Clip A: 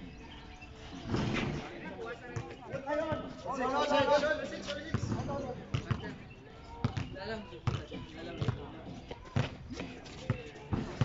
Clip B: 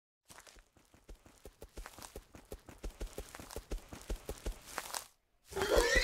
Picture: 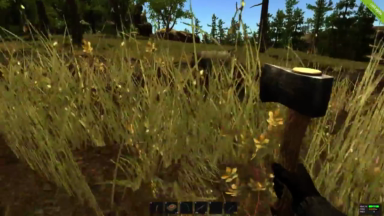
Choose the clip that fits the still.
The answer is B